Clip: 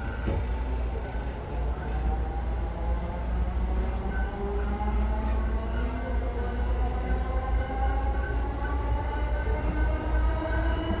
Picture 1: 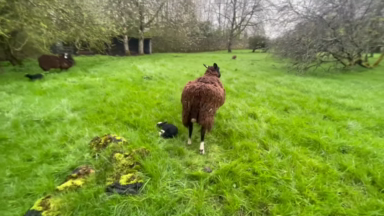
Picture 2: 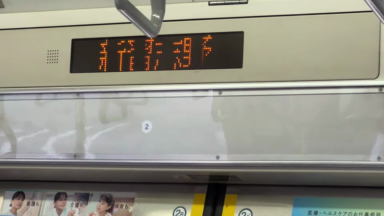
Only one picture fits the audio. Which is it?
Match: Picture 2